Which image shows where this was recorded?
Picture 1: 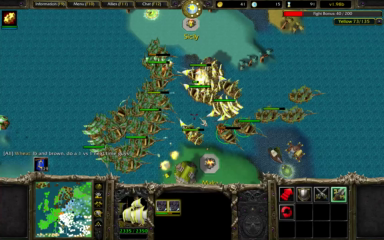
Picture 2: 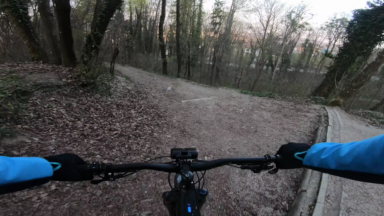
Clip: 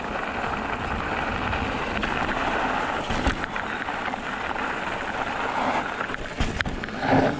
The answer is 2